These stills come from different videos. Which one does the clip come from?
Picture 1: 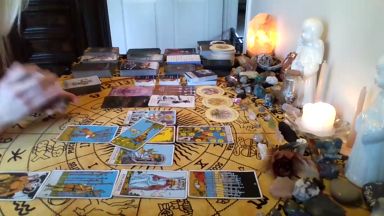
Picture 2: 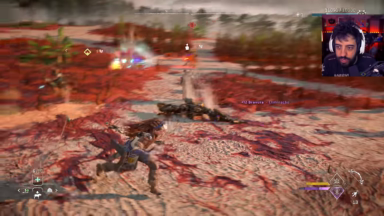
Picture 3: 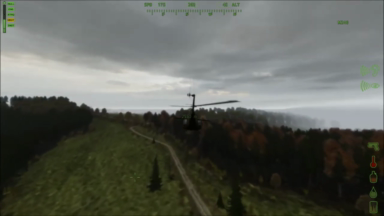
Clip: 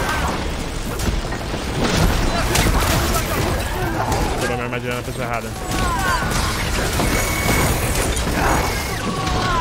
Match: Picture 2